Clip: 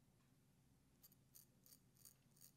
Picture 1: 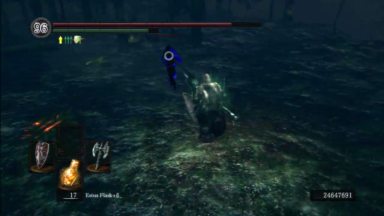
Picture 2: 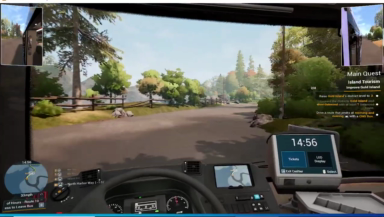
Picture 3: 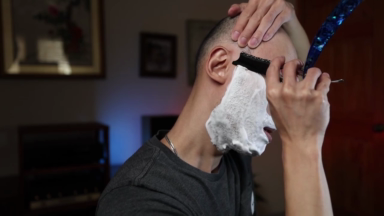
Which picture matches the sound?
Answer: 3